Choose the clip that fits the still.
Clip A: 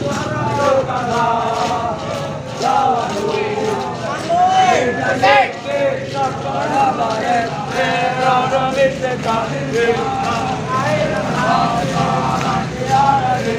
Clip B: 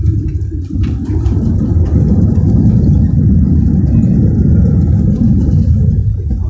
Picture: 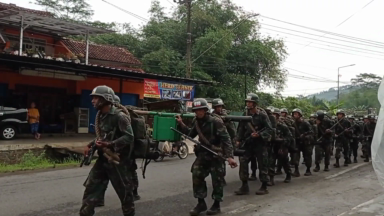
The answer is A